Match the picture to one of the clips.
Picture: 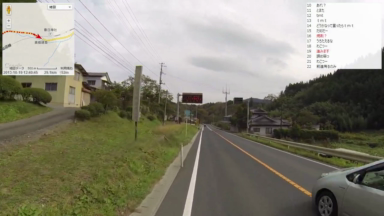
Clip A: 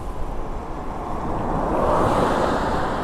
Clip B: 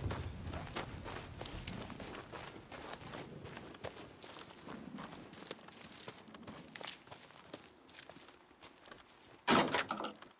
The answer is A